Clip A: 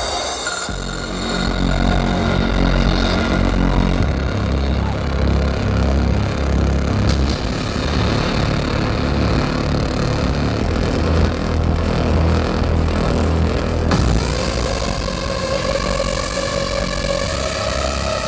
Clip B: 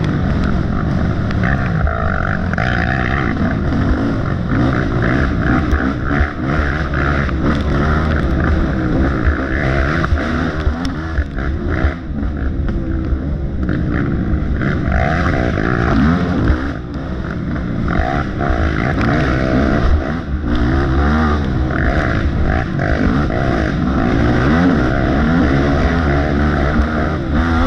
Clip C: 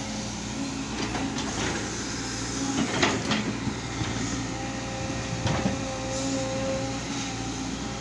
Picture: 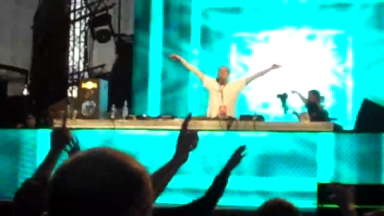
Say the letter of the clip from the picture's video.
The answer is A